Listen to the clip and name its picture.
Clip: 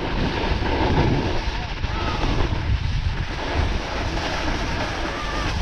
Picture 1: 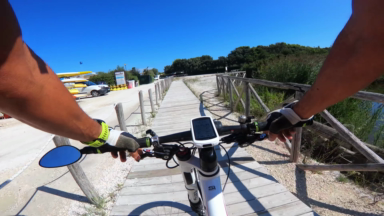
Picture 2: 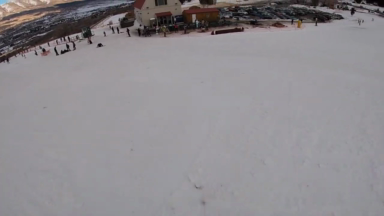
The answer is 2